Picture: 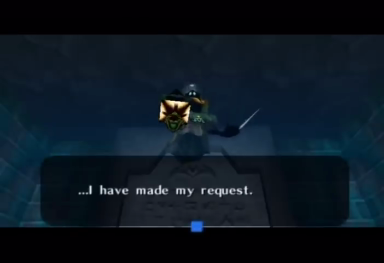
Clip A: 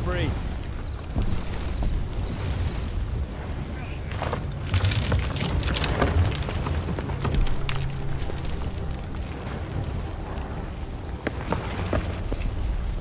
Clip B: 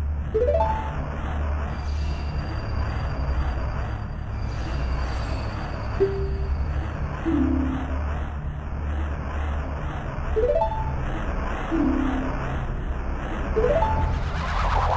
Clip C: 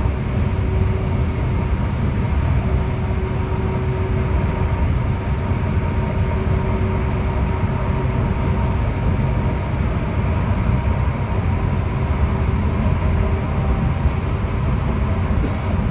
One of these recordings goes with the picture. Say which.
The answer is B